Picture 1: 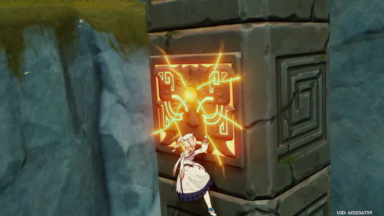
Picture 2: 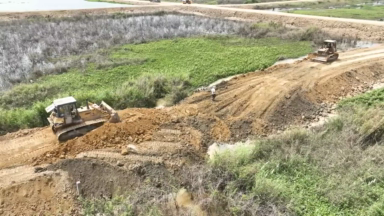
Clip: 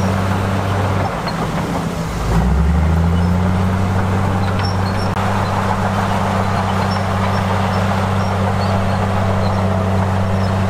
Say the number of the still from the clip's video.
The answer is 2